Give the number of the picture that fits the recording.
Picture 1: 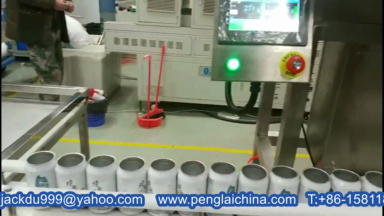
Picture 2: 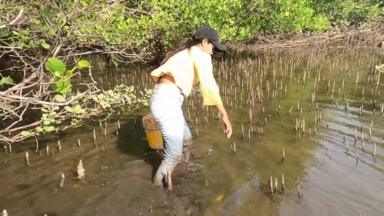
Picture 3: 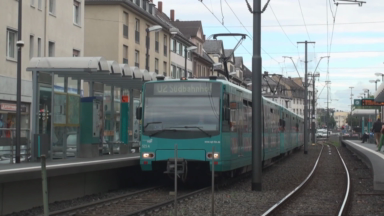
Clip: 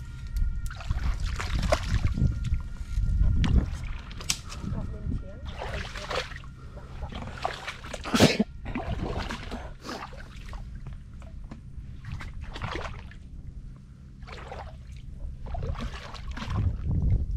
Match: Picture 2